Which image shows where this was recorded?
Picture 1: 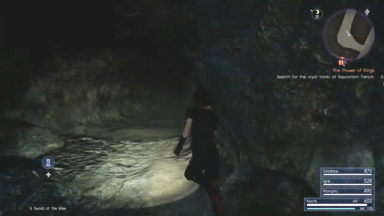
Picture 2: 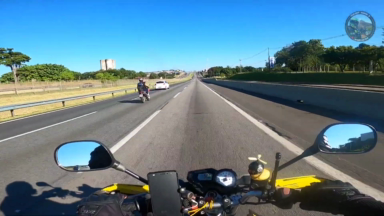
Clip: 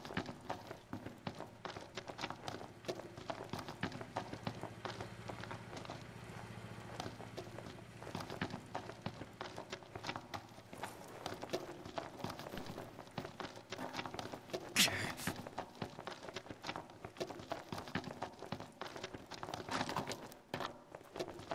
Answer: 1